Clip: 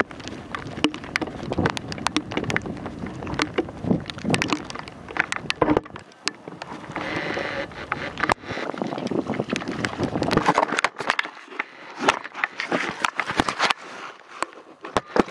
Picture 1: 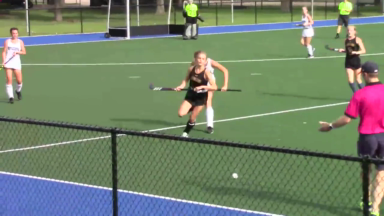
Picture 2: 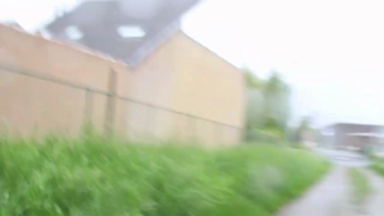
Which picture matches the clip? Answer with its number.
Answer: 2